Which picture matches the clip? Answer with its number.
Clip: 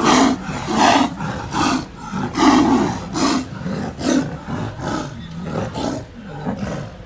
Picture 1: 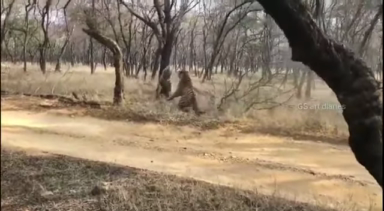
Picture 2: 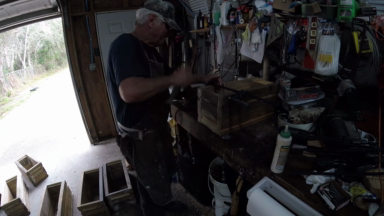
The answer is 1